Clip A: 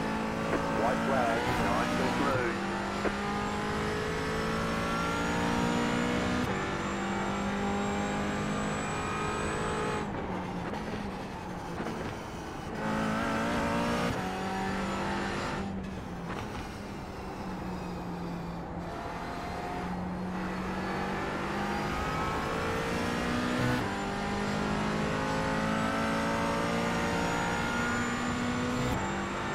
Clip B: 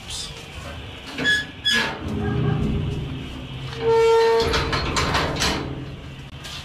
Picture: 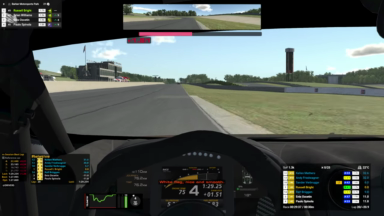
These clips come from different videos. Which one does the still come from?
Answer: A